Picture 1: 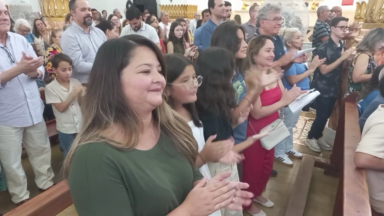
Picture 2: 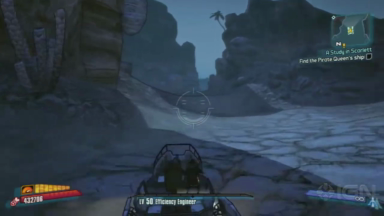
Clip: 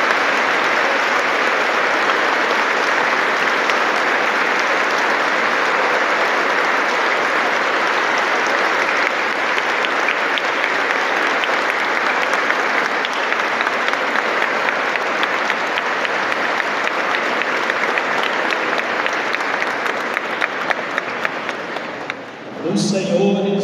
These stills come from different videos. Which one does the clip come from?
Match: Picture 1